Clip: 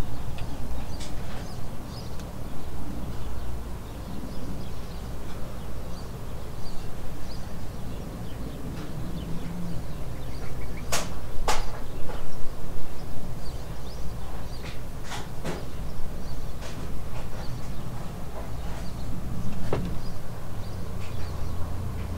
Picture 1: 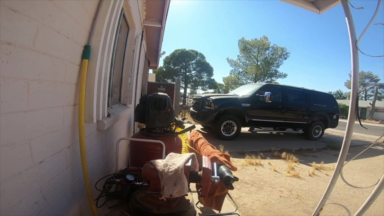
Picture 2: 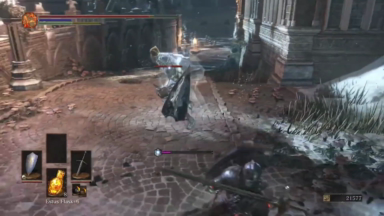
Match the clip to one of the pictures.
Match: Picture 1